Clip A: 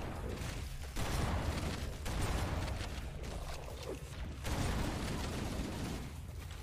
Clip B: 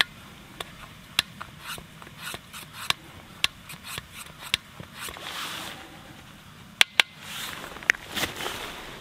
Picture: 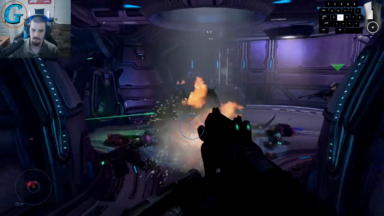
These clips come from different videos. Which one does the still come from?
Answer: A